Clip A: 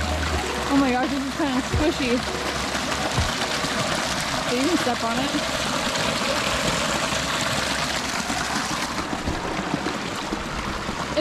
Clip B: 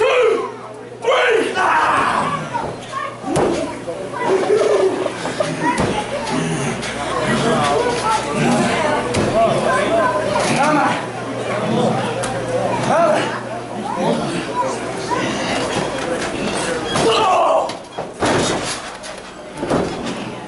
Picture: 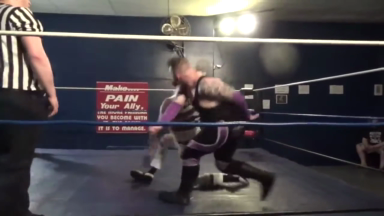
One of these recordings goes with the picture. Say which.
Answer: B